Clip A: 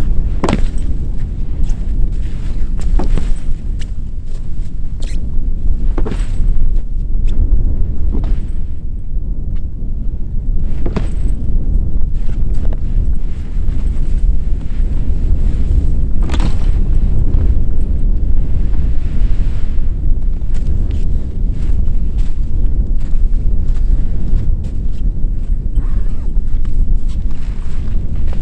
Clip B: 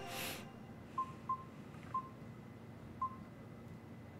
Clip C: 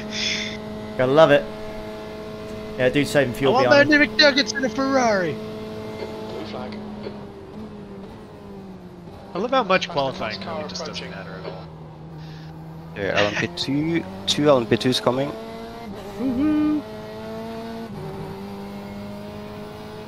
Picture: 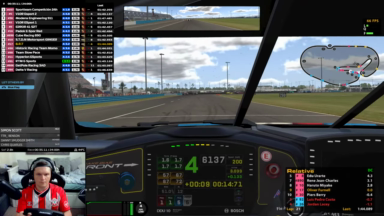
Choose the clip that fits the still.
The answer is C